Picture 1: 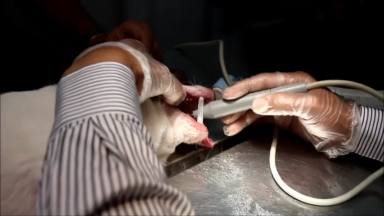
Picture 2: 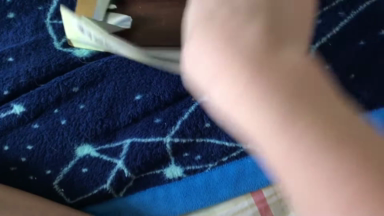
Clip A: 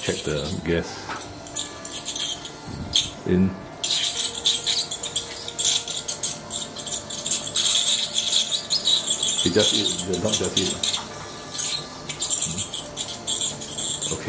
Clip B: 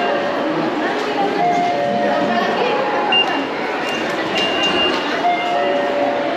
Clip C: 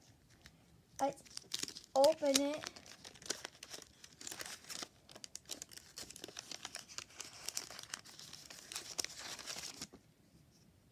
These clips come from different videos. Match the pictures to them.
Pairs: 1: A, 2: C